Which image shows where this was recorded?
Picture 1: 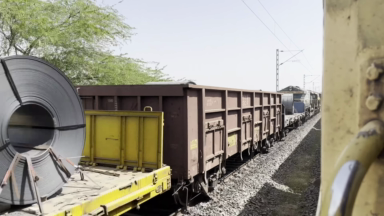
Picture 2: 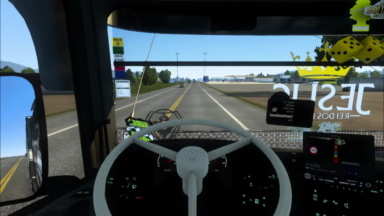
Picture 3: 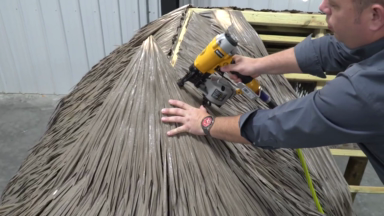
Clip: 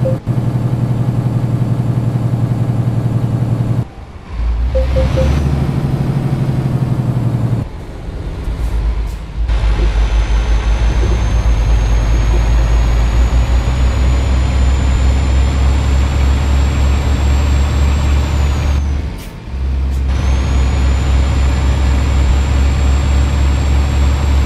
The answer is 2